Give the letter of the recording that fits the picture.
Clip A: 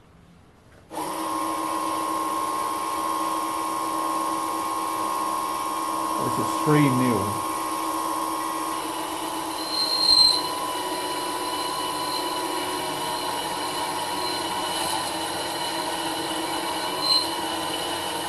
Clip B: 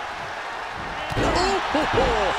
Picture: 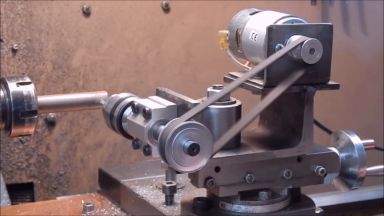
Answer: A